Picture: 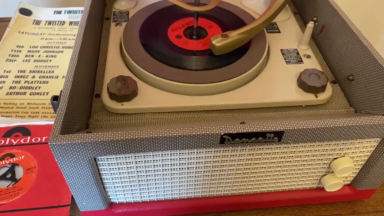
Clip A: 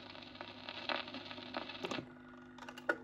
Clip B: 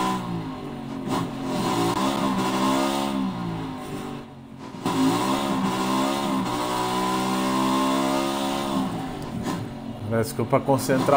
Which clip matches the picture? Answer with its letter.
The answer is A